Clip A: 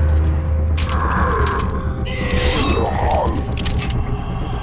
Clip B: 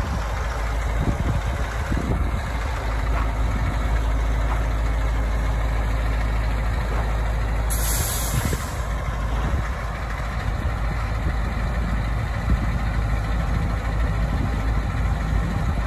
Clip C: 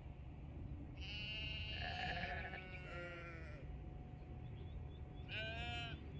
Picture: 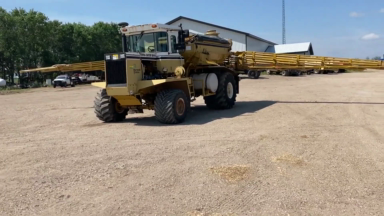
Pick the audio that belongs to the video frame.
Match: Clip B